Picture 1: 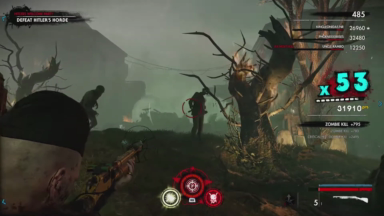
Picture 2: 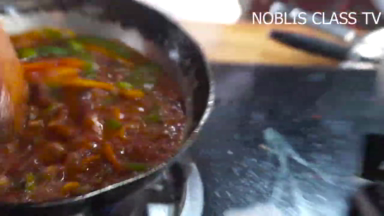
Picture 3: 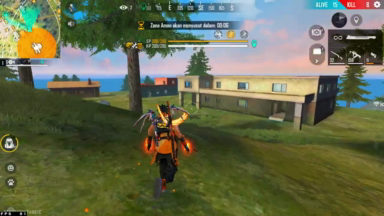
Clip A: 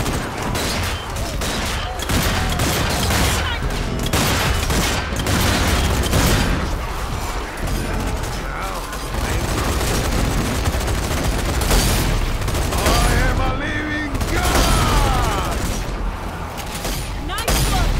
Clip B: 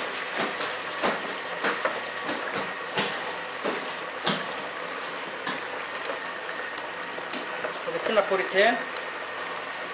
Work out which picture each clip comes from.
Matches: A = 1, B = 2